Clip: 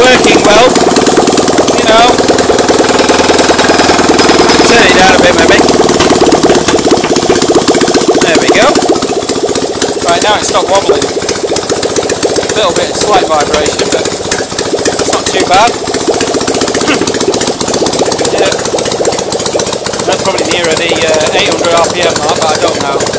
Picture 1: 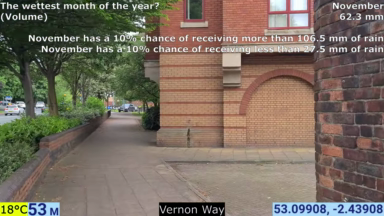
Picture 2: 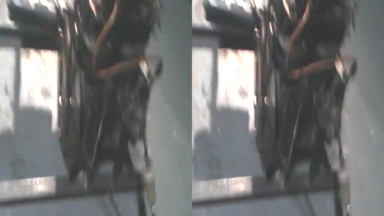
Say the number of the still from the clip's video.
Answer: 2